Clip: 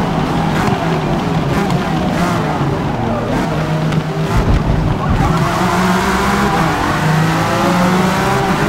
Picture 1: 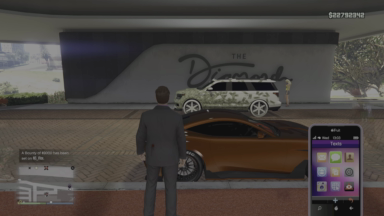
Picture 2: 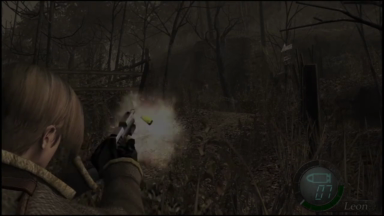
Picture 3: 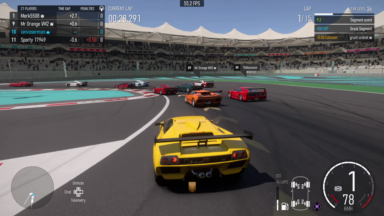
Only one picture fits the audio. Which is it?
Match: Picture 3